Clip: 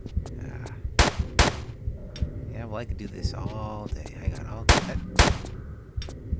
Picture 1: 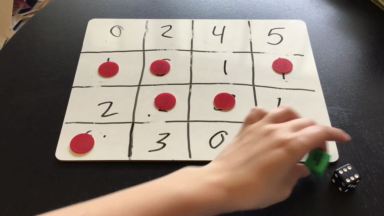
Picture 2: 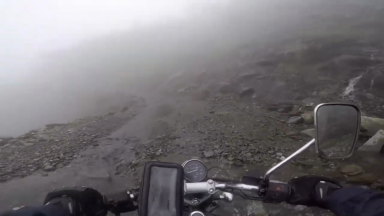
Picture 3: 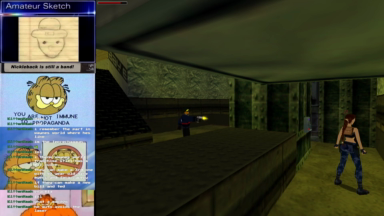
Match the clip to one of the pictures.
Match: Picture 3